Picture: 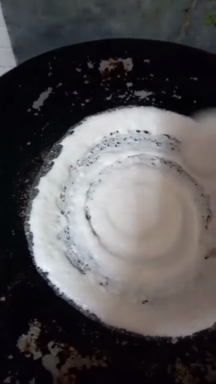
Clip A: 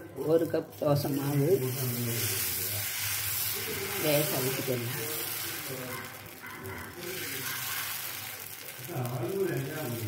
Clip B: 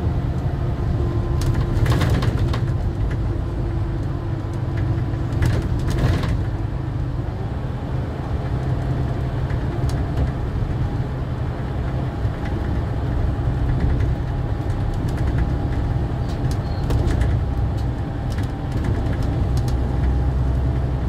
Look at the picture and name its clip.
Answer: A